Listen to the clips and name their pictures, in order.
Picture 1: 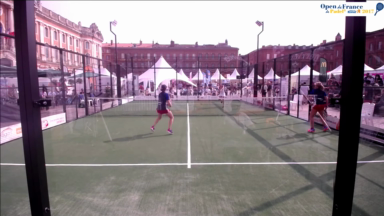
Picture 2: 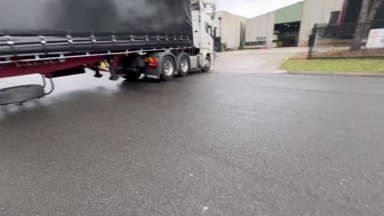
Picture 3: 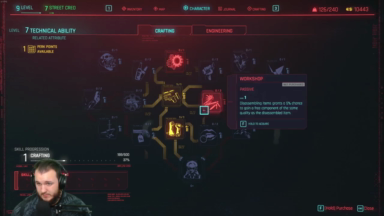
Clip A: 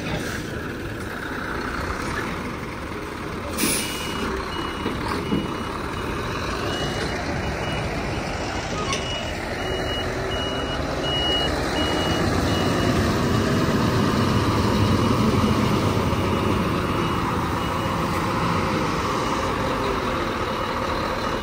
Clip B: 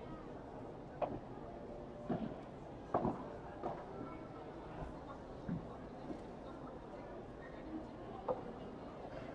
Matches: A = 2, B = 1